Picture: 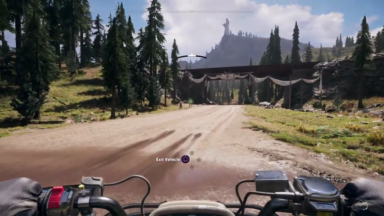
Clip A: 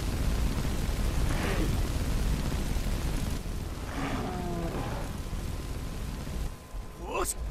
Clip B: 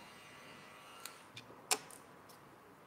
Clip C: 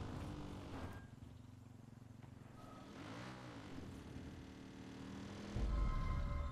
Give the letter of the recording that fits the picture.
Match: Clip C